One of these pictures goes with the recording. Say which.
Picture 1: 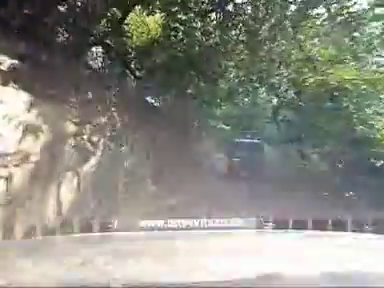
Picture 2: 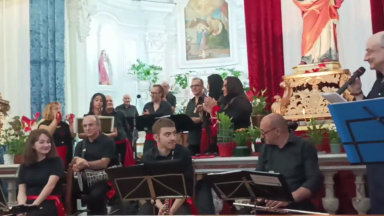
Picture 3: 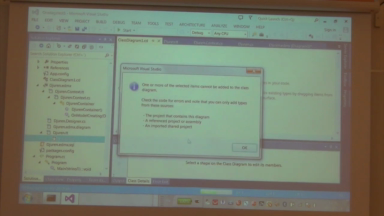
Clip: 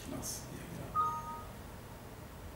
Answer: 3